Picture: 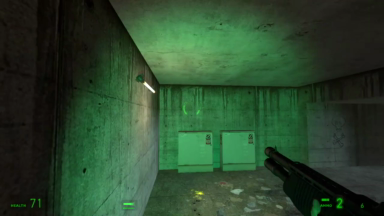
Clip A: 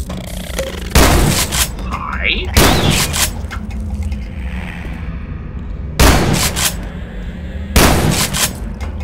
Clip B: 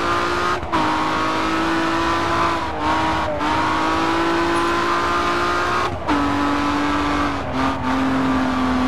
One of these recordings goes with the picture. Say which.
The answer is A